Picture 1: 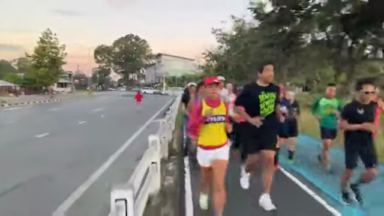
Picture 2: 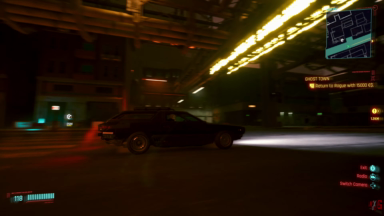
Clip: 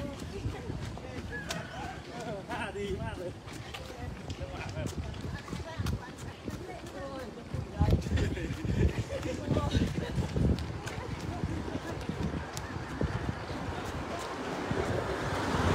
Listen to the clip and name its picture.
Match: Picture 1